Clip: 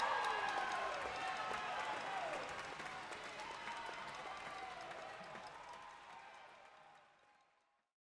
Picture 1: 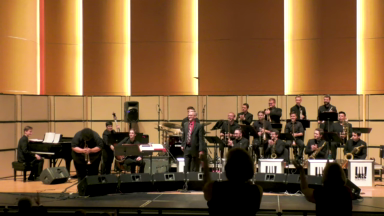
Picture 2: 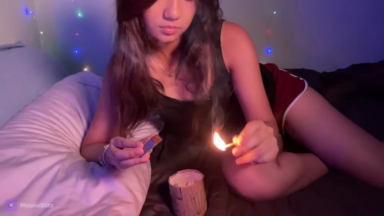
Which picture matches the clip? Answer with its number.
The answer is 1